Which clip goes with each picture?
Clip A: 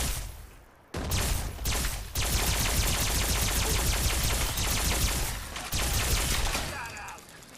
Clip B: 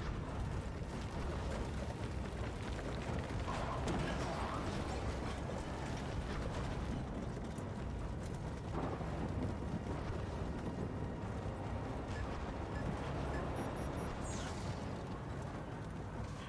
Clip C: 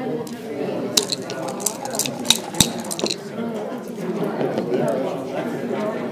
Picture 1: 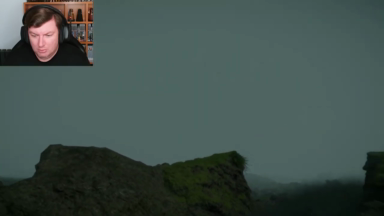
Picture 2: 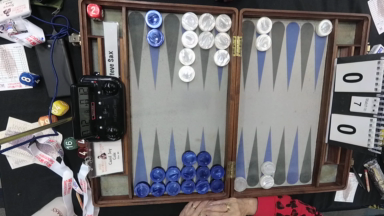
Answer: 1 B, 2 C